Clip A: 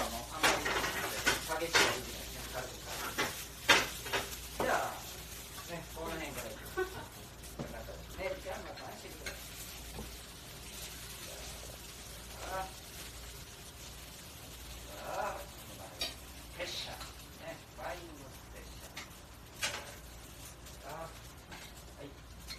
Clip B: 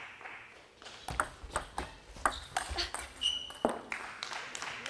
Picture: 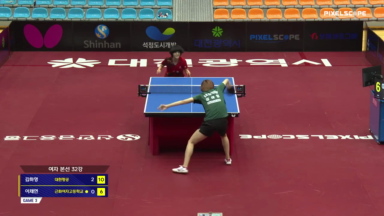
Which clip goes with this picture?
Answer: B